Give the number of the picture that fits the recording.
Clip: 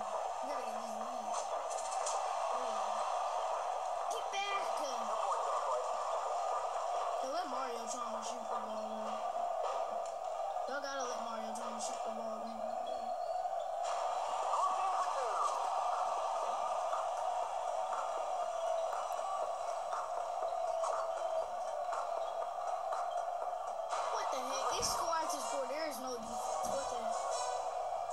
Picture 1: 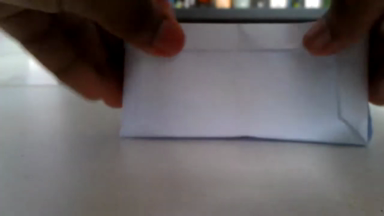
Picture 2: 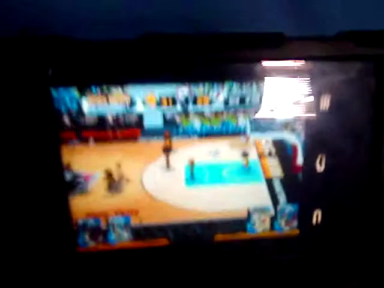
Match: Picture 2